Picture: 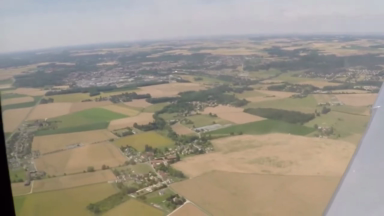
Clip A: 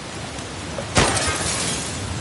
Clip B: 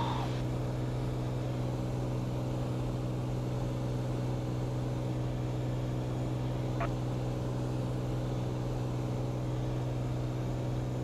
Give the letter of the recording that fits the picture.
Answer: B